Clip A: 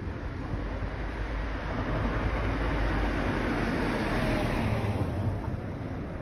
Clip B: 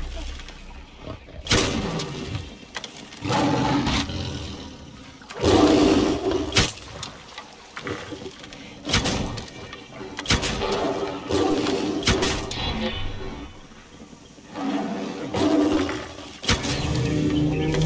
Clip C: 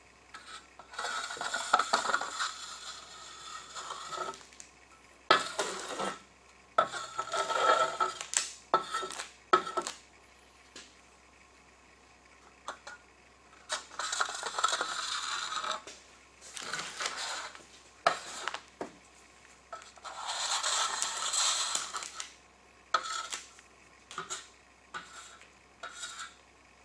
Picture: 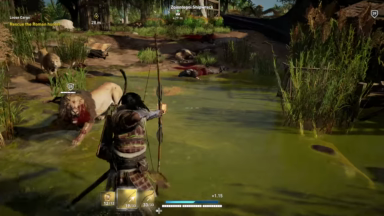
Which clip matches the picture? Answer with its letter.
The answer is B